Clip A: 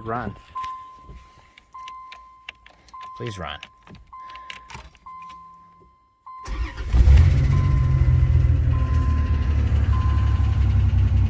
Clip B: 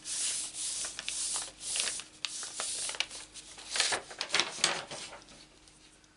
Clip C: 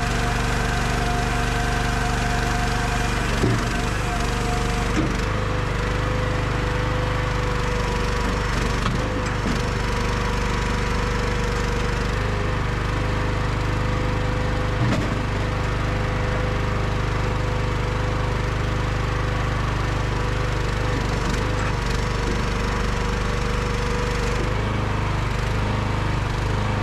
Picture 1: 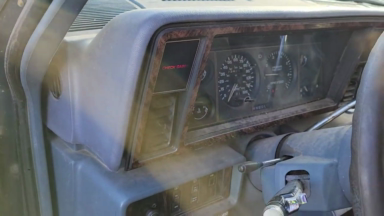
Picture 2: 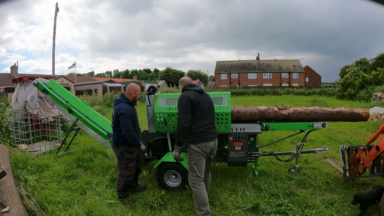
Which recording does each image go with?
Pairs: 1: A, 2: C